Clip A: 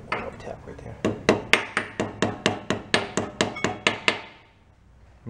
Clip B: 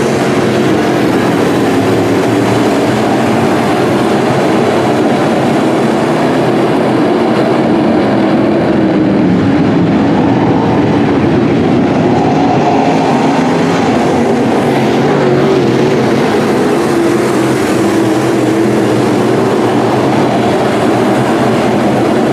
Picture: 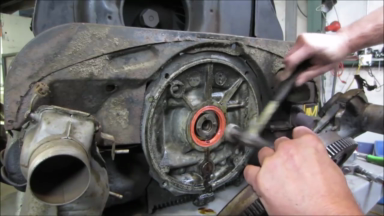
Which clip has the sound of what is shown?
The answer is A